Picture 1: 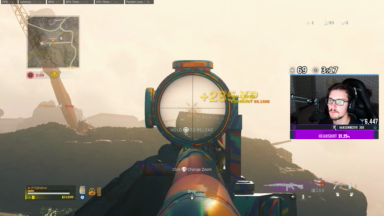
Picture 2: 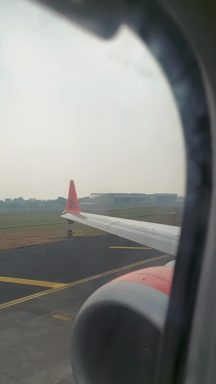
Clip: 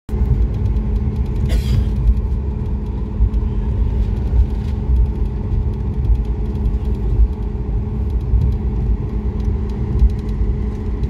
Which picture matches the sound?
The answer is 2